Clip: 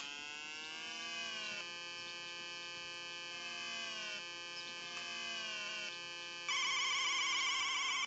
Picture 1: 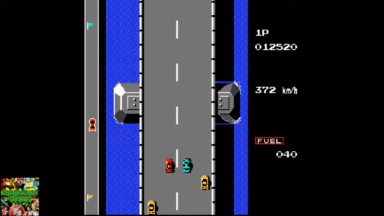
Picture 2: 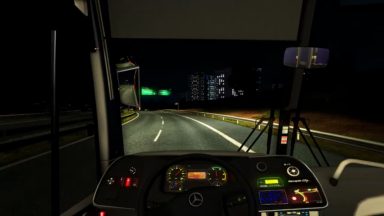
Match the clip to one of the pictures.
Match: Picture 1